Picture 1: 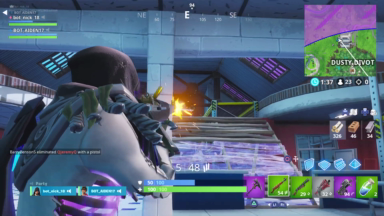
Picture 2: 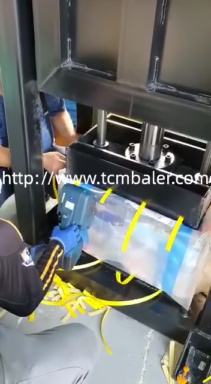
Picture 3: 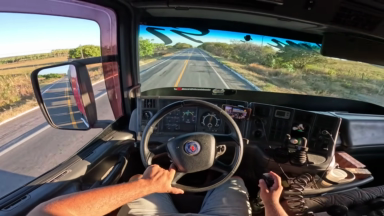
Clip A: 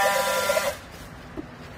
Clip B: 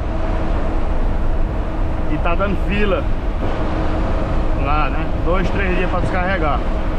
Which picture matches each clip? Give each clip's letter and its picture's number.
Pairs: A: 2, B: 3